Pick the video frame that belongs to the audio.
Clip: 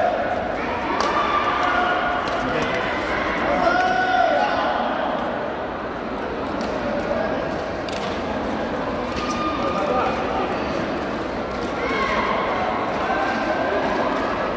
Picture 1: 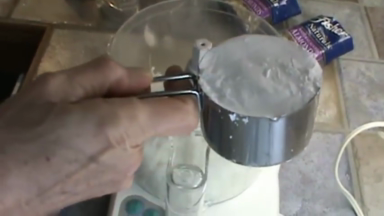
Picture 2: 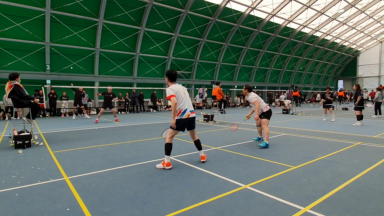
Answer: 2